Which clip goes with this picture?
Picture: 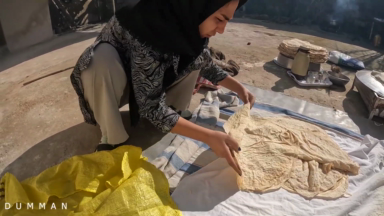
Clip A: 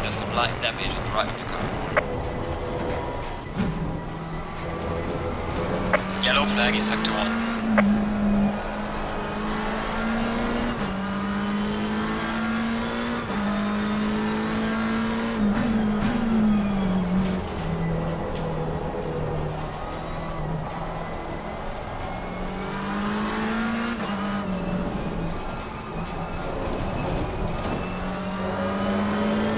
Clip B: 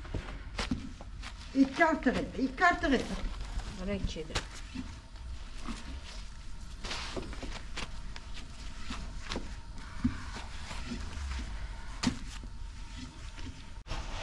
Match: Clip B